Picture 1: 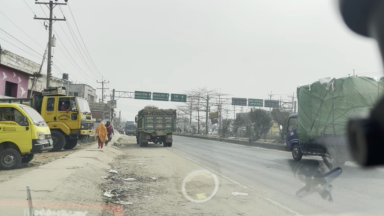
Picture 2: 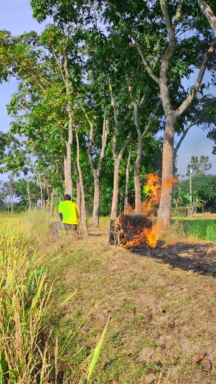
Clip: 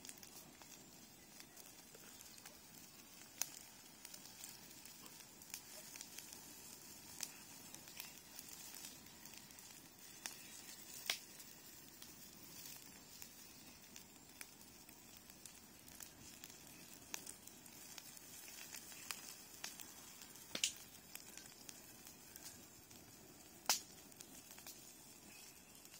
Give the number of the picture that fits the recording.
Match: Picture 2